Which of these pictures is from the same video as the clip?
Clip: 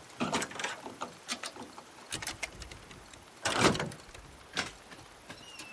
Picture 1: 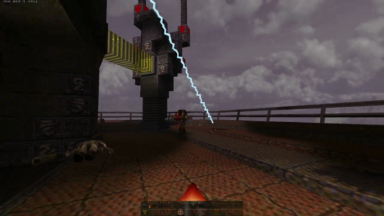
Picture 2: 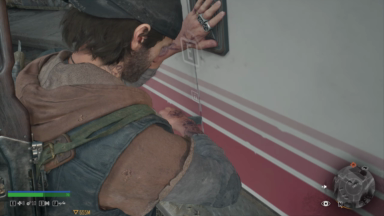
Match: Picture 2